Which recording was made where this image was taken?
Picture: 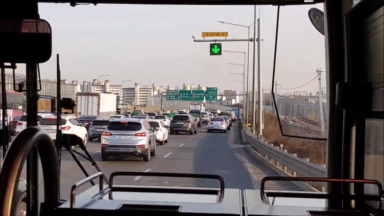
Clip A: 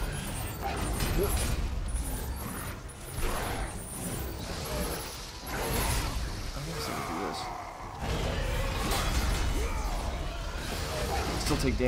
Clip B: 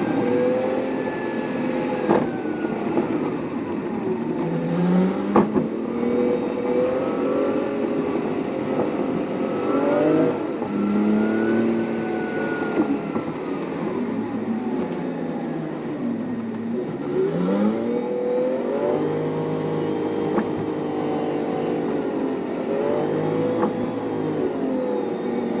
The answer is B